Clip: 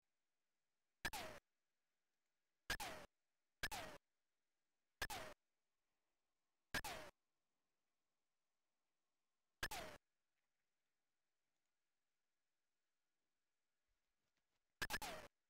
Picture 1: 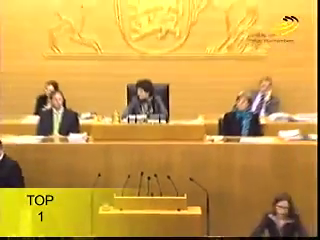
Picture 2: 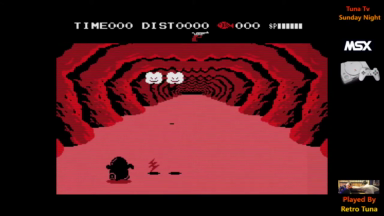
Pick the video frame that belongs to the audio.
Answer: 2